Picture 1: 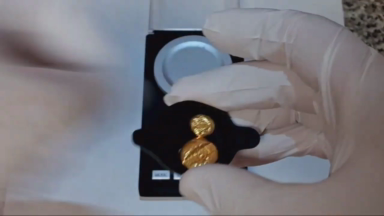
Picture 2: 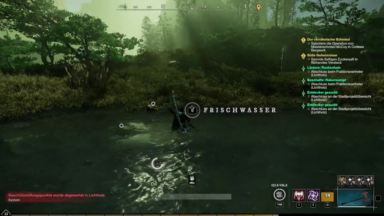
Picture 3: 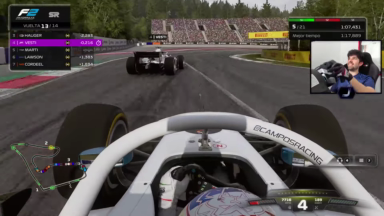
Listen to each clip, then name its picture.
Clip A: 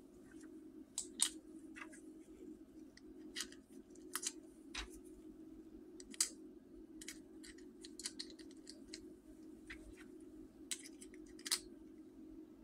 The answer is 1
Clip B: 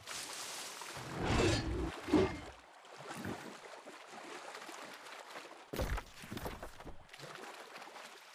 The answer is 2